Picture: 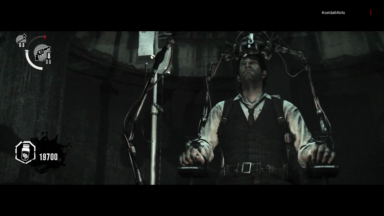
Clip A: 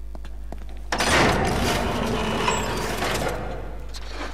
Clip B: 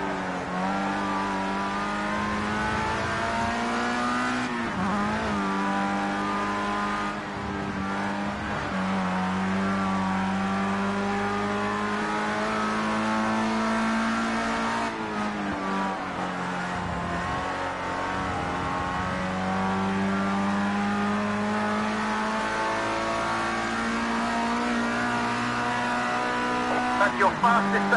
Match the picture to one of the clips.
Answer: A